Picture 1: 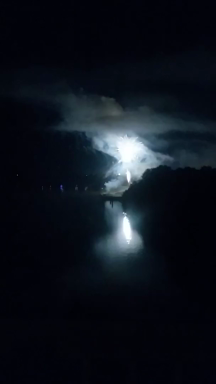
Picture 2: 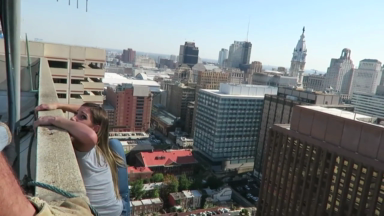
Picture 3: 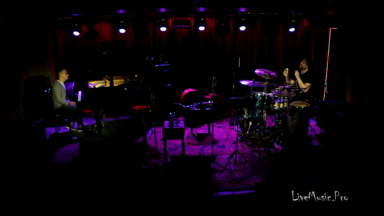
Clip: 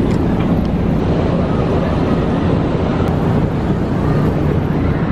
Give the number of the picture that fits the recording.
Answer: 2